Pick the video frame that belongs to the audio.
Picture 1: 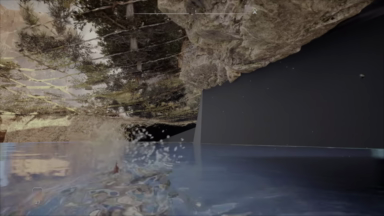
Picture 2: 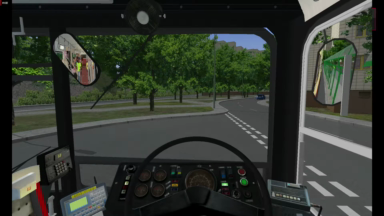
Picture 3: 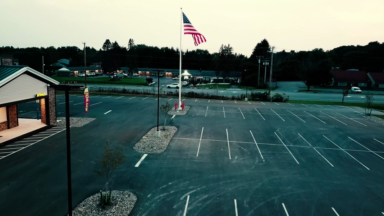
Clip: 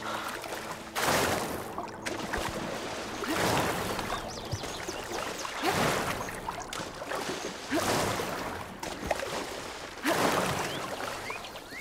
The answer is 1